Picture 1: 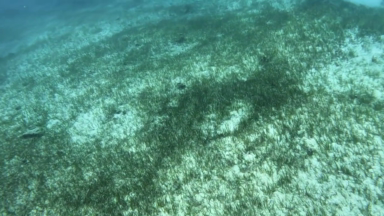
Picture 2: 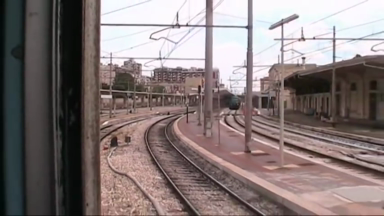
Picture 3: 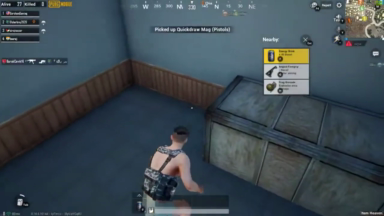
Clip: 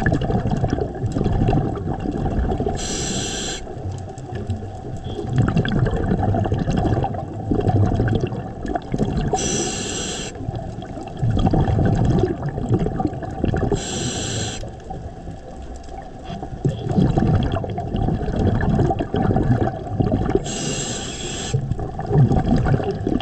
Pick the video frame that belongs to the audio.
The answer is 1